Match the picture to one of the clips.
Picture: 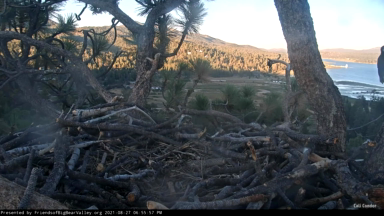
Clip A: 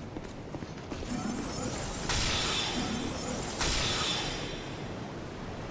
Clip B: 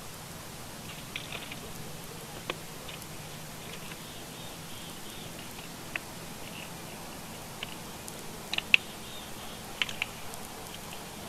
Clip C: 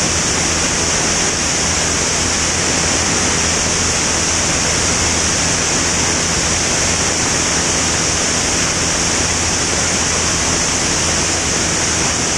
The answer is B